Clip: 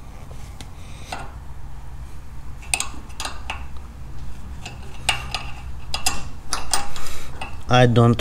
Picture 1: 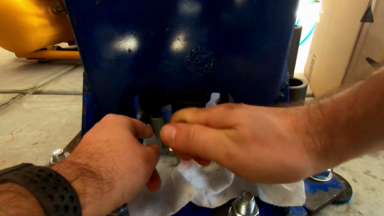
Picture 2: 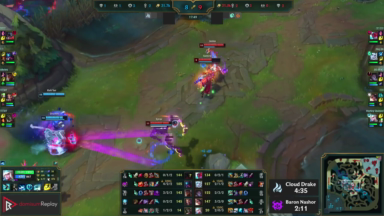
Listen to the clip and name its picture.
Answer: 1